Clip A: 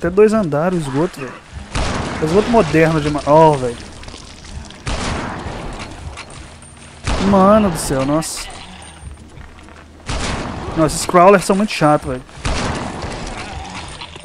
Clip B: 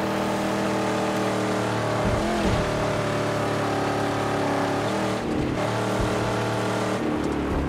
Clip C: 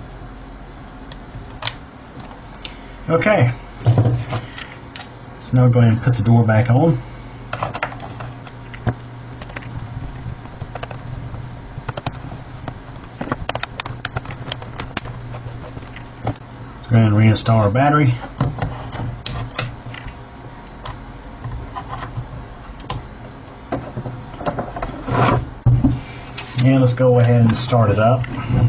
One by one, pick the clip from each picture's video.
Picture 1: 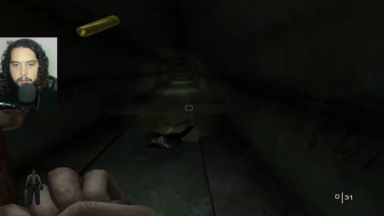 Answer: A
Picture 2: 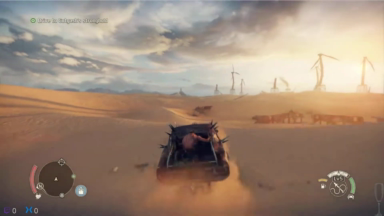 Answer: B